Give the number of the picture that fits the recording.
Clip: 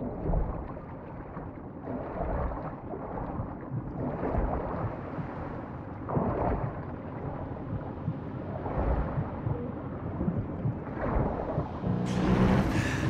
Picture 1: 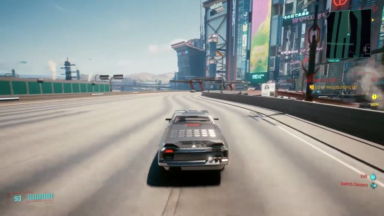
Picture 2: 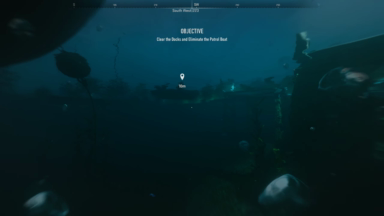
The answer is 2